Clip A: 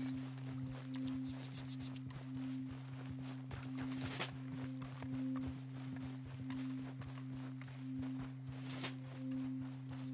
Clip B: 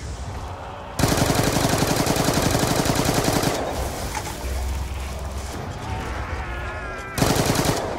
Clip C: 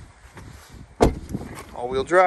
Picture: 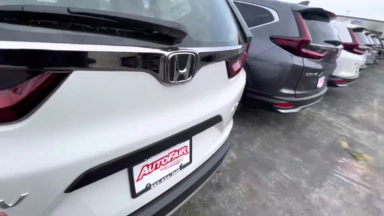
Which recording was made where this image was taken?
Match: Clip C